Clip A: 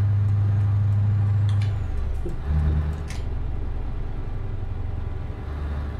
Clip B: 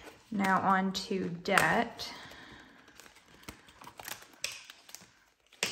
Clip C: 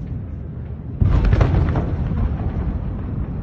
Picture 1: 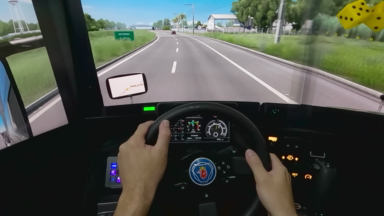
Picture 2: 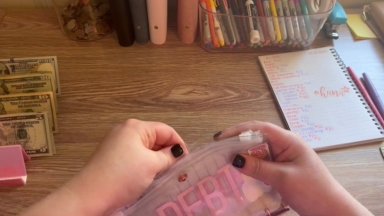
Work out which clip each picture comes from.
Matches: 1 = A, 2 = B